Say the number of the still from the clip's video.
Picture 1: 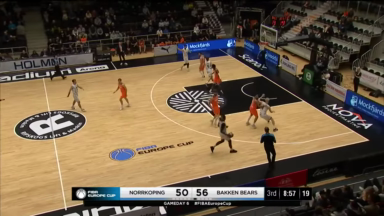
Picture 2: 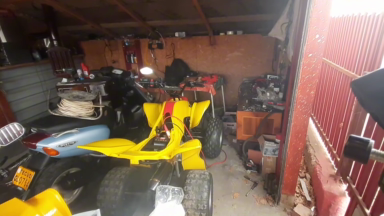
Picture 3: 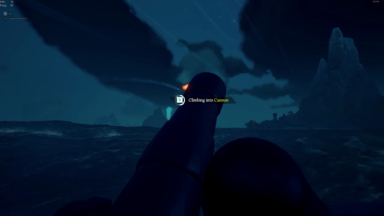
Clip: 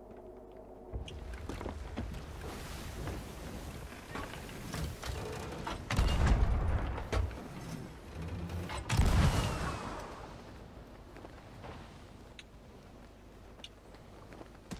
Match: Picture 3